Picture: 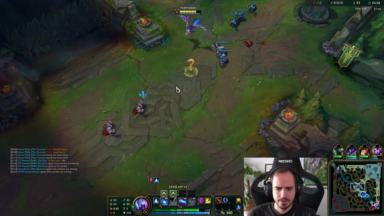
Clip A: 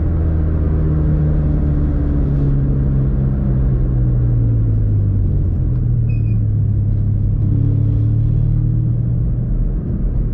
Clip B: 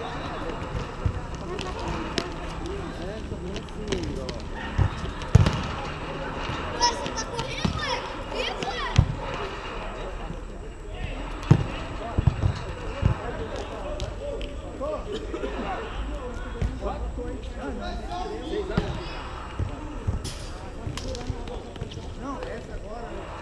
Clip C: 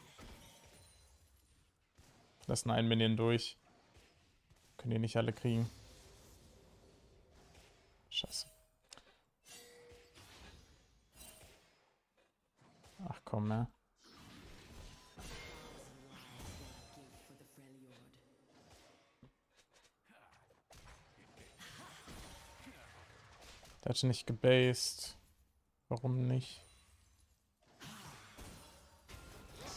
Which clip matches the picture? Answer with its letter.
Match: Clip C